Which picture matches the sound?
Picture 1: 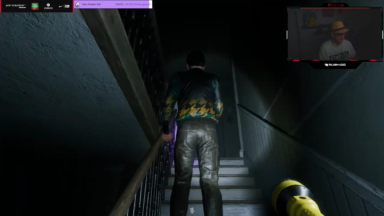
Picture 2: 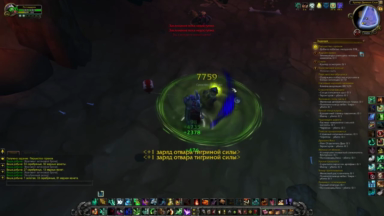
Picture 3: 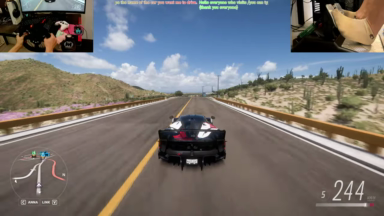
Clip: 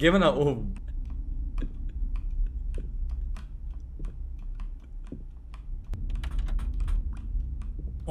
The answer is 1